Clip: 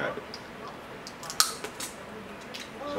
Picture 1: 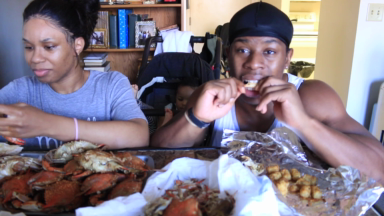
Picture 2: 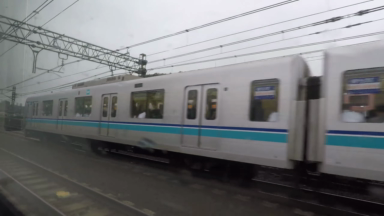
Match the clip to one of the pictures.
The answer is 1